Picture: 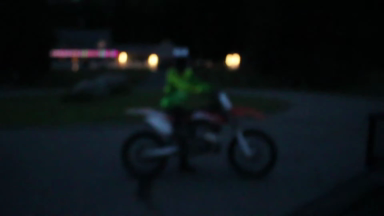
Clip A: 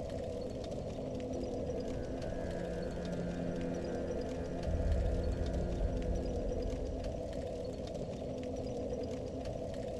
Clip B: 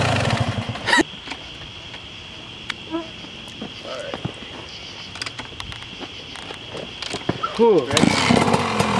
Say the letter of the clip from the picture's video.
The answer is B